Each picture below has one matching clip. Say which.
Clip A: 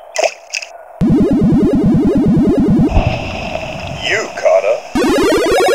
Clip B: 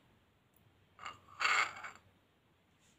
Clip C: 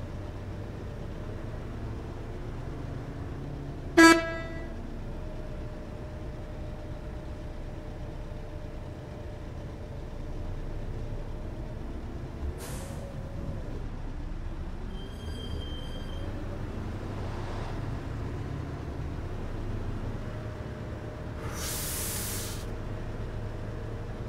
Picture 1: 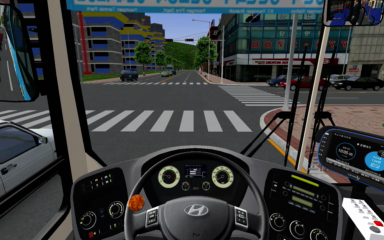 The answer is C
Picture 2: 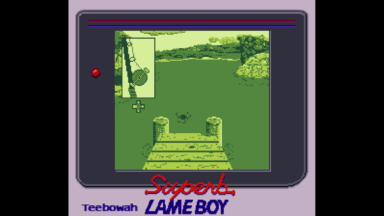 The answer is A